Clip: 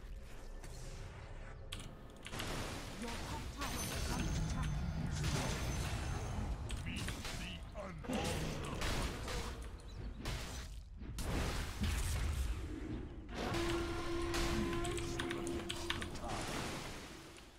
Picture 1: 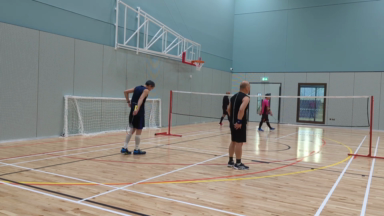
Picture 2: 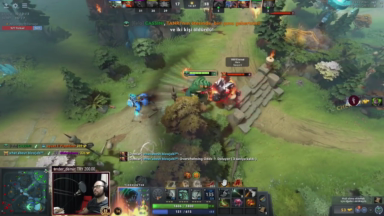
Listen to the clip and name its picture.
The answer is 2